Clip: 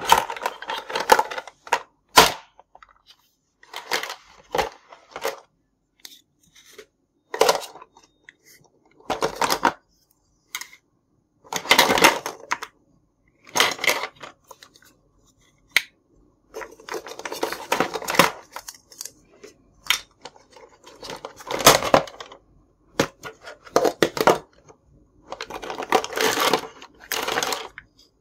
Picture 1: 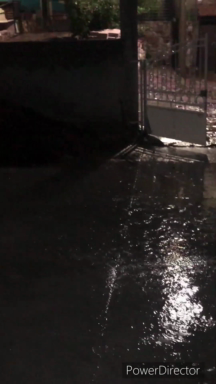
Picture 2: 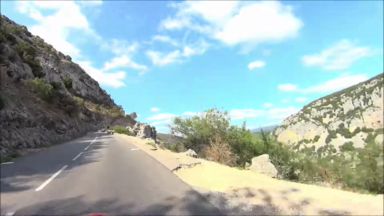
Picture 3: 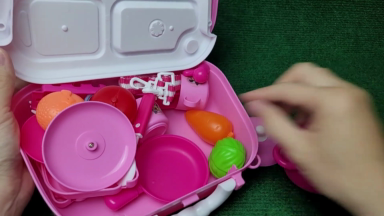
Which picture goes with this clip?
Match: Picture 3